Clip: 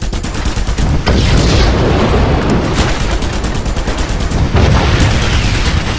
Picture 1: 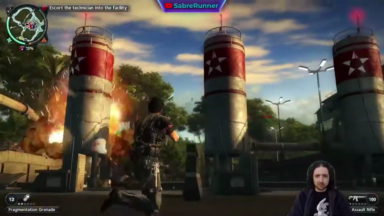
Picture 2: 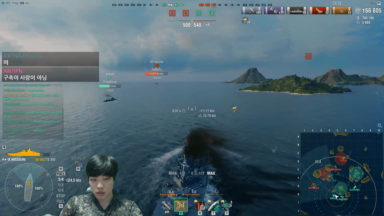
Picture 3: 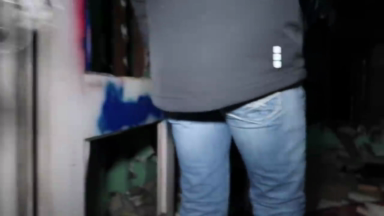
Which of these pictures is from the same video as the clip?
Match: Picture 1